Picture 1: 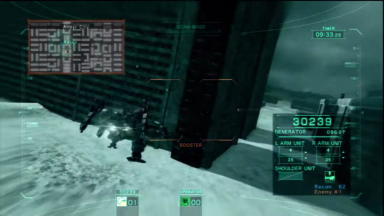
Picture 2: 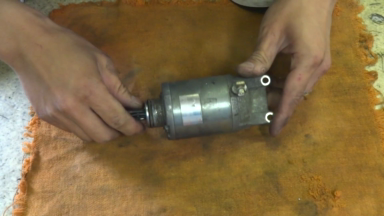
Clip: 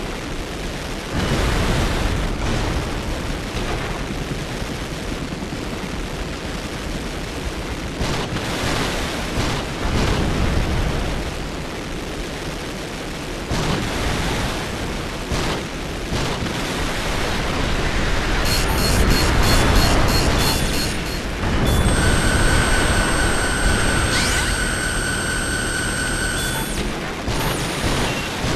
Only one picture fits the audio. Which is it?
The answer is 1